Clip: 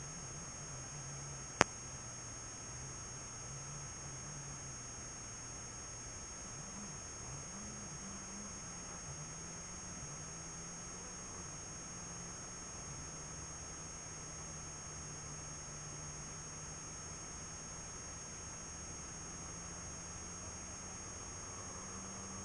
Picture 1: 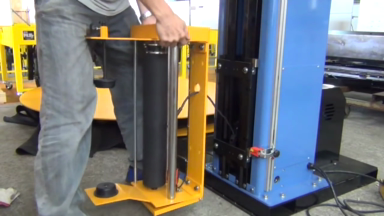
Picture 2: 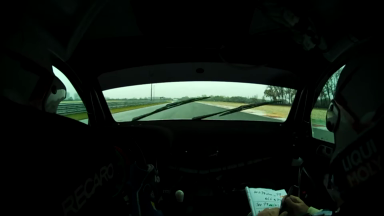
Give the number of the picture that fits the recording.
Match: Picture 2